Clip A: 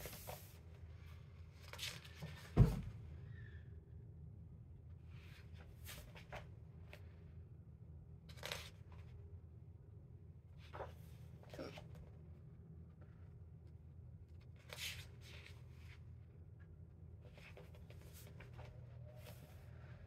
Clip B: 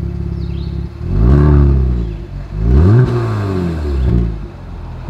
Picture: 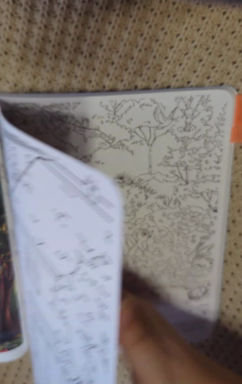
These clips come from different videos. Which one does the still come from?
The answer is A